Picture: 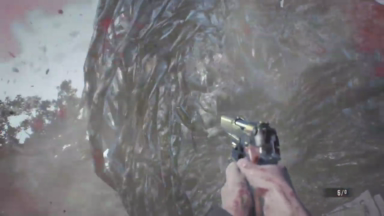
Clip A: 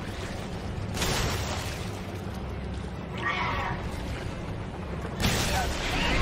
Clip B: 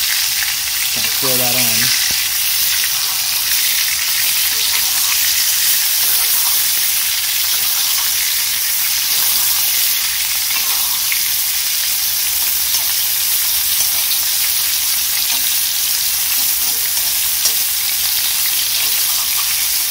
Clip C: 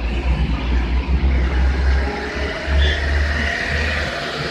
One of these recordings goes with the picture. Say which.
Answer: A